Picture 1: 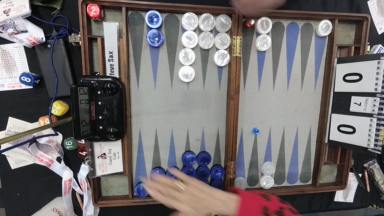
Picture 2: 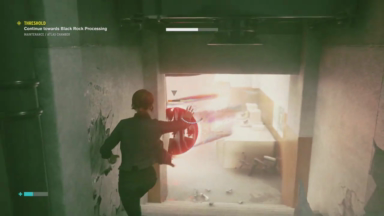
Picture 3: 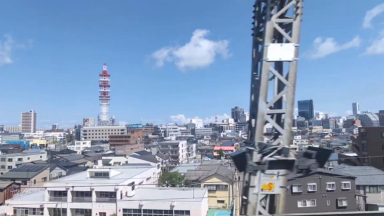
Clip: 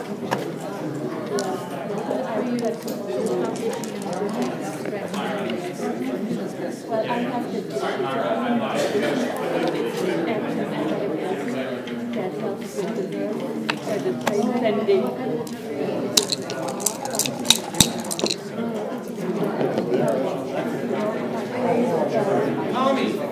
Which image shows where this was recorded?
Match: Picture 1